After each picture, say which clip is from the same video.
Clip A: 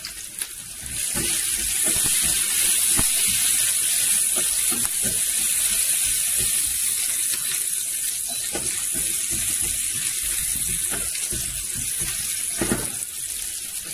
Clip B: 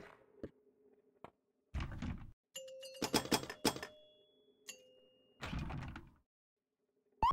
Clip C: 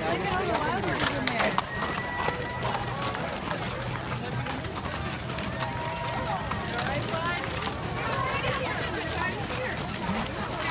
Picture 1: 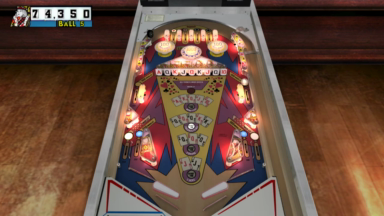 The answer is B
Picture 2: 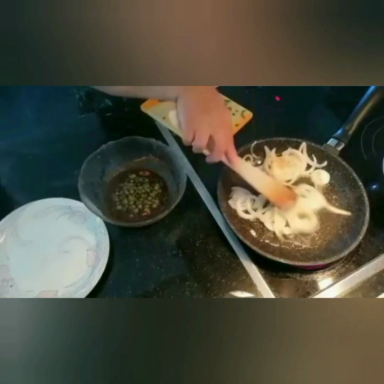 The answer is A